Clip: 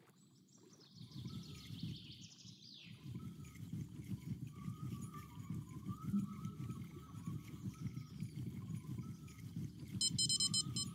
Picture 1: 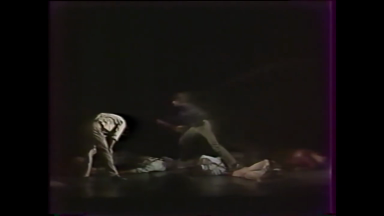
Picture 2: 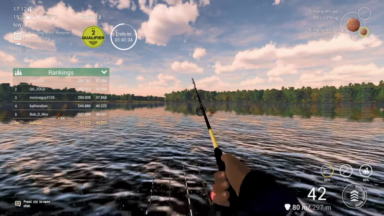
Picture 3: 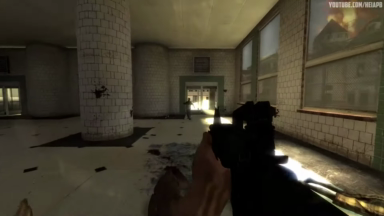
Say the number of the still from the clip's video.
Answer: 2